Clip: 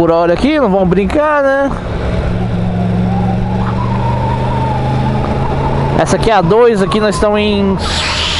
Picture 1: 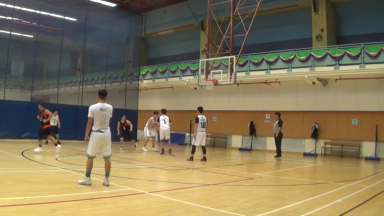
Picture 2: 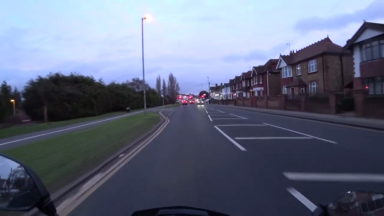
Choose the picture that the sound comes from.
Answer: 2